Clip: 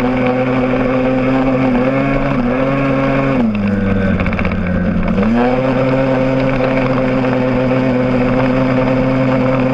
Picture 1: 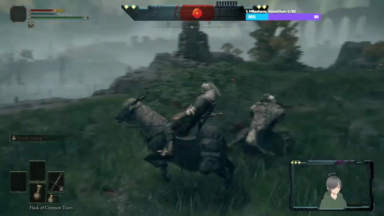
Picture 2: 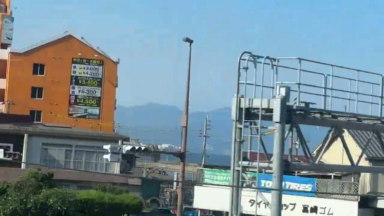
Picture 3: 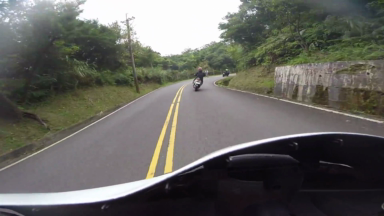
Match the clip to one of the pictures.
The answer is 3